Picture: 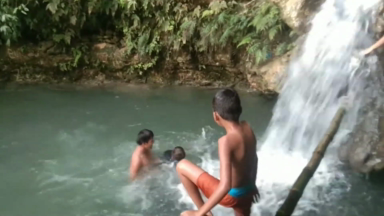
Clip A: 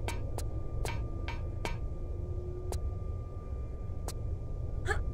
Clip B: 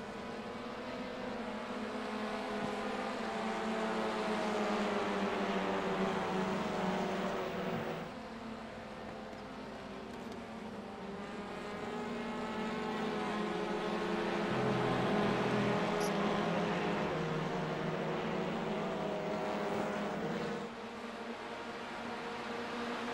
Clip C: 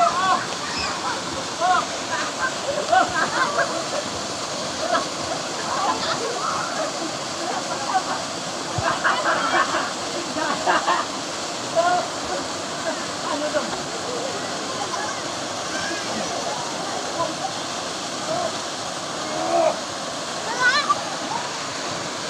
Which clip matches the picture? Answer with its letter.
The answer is C